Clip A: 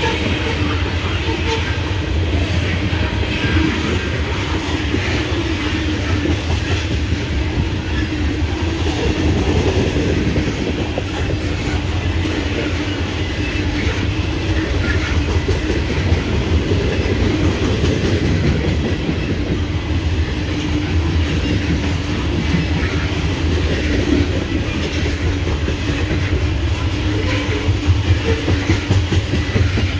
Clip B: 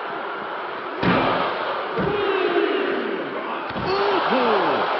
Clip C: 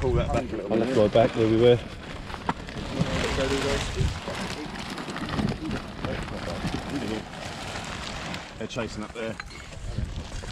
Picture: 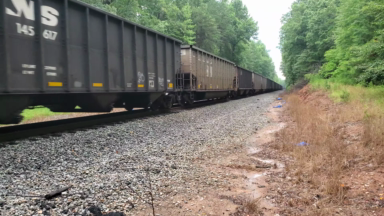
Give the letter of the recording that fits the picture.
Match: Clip A